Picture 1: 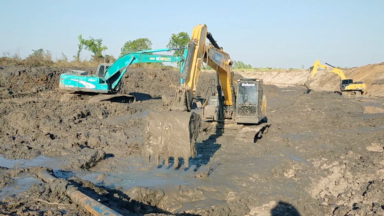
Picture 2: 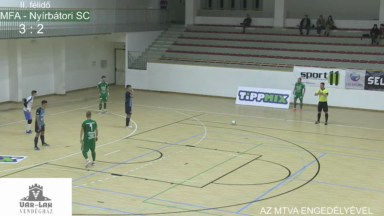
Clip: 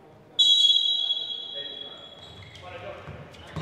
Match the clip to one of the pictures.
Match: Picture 2